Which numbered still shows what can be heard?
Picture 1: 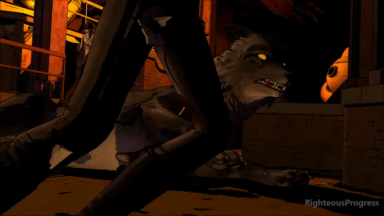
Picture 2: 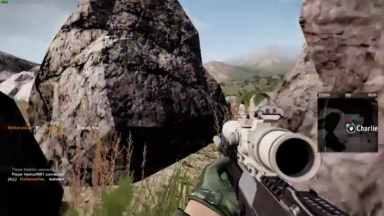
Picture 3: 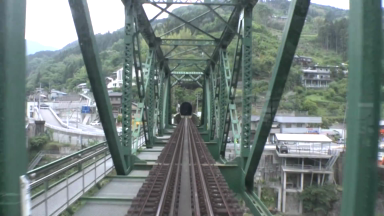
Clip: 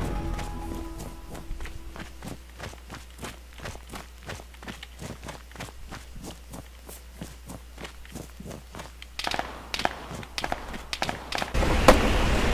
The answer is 2